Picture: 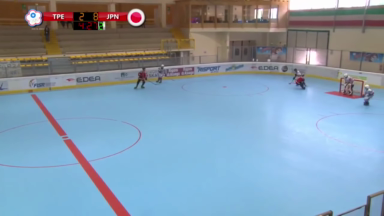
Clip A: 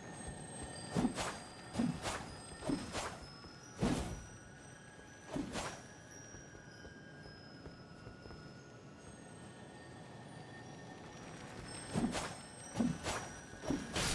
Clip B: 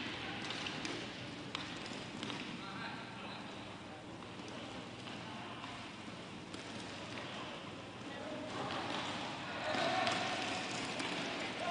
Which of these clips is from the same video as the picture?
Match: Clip B